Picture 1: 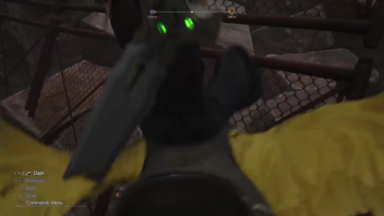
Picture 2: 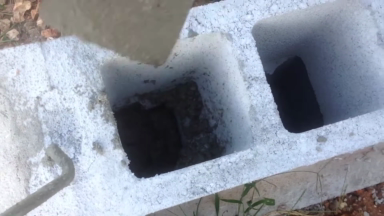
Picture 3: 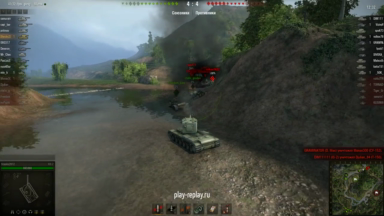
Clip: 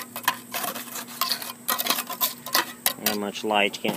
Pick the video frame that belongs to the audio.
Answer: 2